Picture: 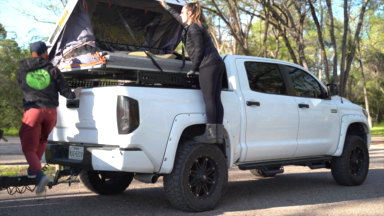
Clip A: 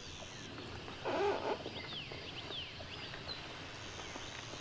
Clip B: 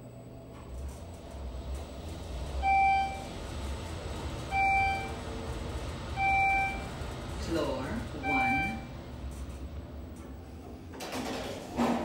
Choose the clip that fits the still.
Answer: A